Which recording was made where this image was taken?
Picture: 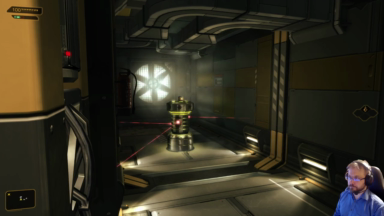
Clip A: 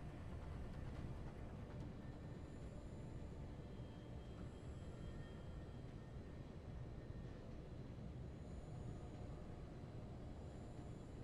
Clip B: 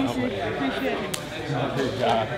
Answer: A